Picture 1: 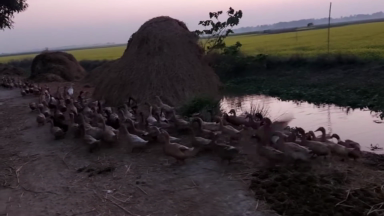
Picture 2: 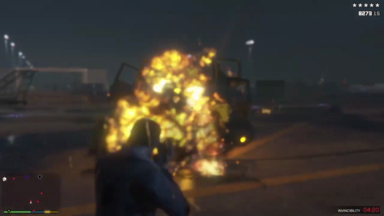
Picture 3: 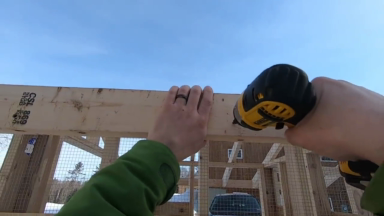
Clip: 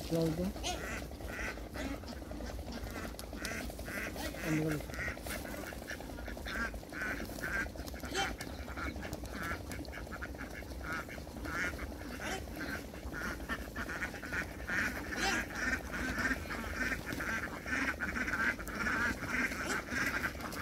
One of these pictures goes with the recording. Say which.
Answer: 1